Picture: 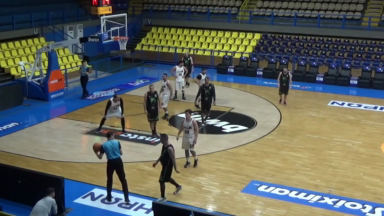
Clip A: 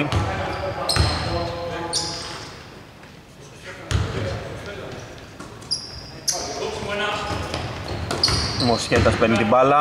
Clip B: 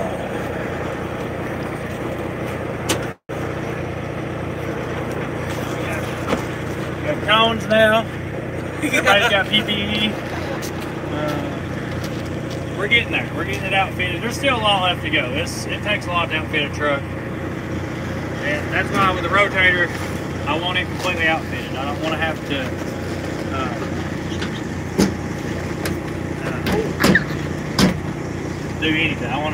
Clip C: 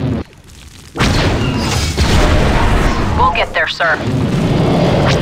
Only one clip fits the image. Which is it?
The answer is A